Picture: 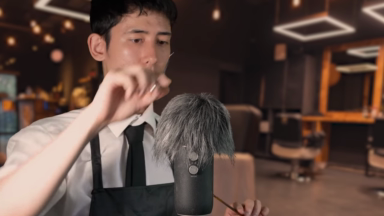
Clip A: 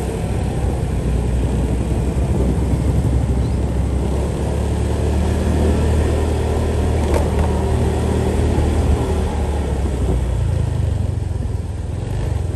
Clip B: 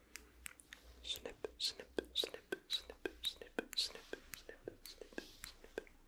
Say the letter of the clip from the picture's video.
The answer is B